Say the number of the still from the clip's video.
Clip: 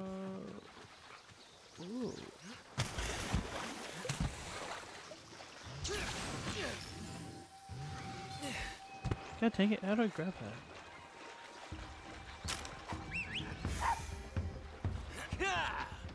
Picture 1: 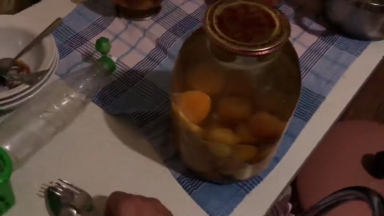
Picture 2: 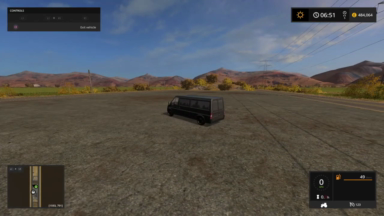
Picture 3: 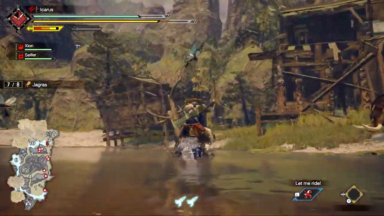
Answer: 3